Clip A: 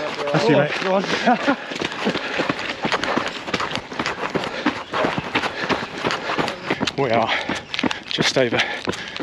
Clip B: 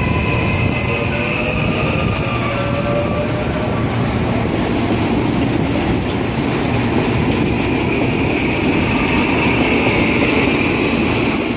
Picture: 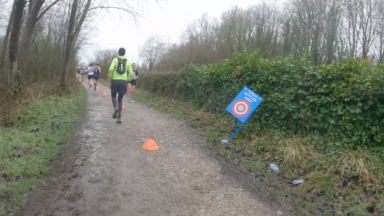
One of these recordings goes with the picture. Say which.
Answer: A